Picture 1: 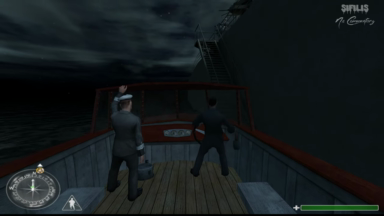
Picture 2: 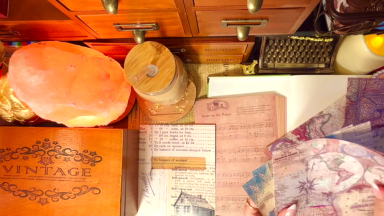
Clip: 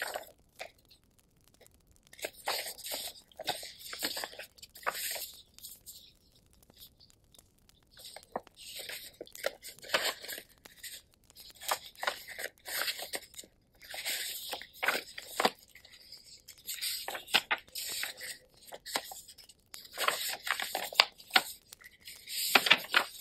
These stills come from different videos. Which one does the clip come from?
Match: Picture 2